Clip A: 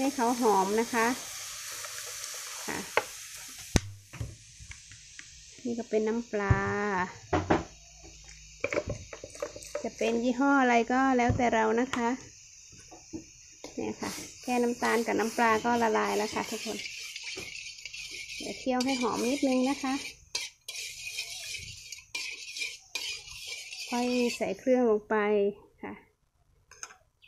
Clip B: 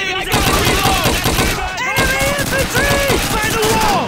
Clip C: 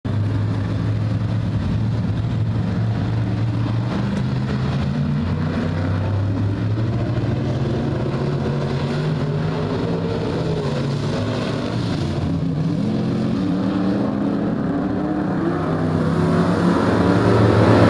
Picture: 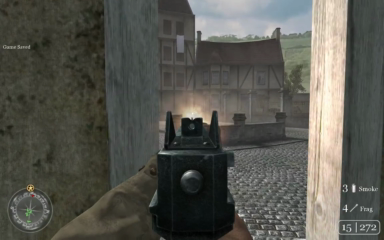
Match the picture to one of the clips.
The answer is B